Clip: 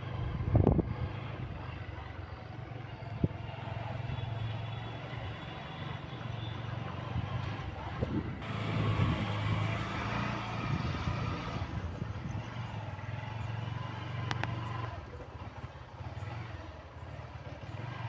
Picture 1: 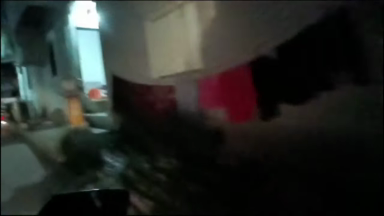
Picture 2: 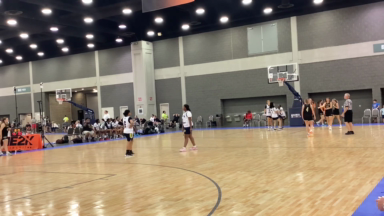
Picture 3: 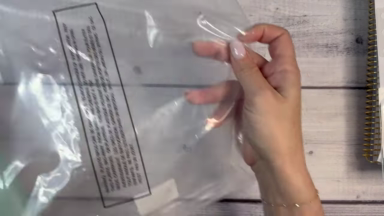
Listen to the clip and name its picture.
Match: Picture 1